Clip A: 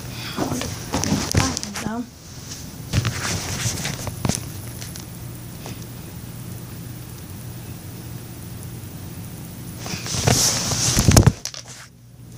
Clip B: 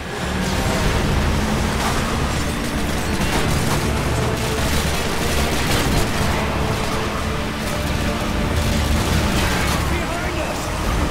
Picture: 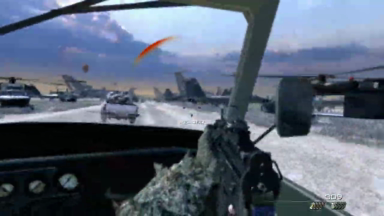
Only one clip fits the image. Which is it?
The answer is B